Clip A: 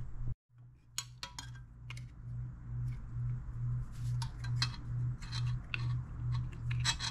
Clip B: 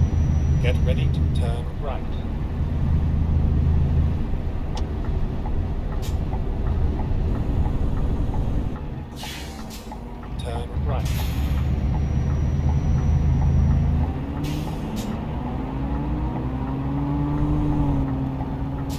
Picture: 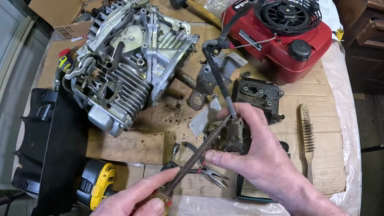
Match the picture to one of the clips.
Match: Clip A